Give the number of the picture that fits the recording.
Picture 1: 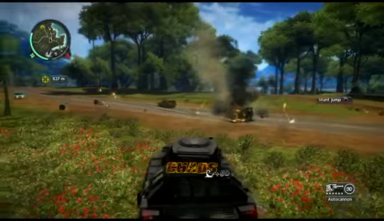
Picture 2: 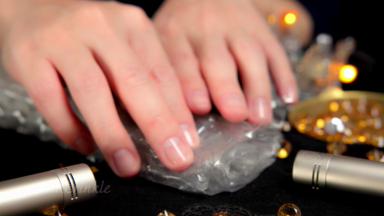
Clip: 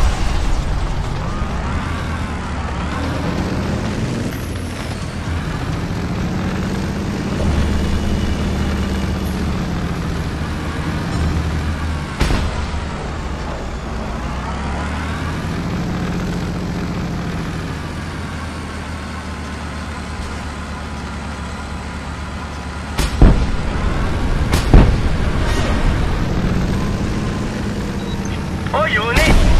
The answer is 1